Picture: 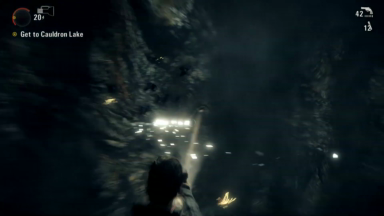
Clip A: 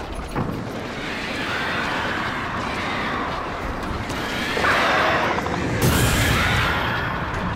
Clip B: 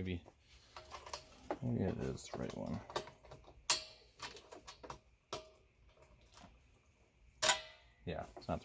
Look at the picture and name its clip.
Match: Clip A